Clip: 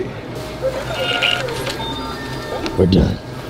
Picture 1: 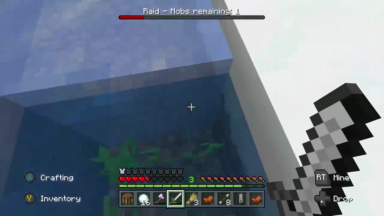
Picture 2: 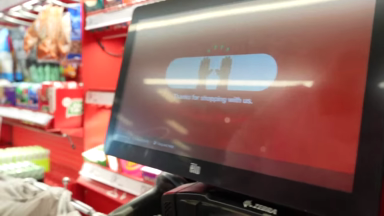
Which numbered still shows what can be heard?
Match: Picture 2